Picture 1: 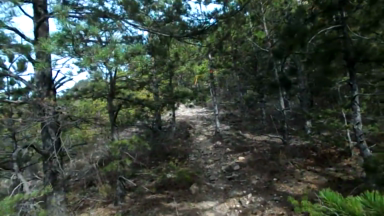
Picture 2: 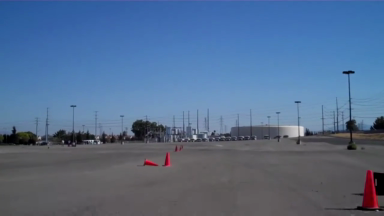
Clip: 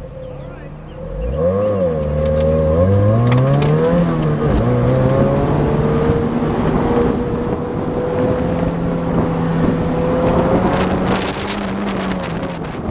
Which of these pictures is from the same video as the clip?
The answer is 2